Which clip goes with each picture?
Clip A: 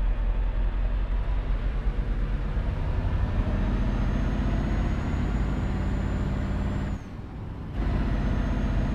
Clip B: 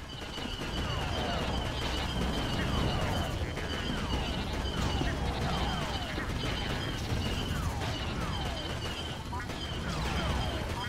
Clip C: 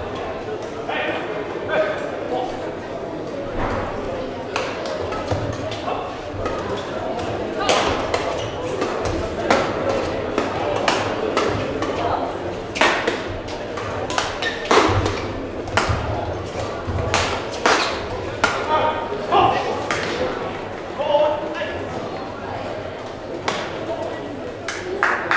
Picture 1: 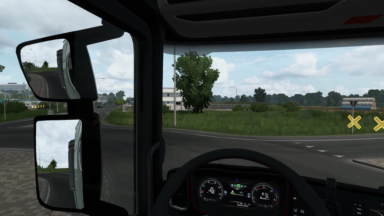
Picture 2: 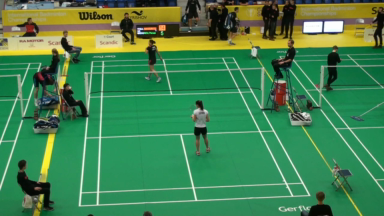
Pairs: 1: A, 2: C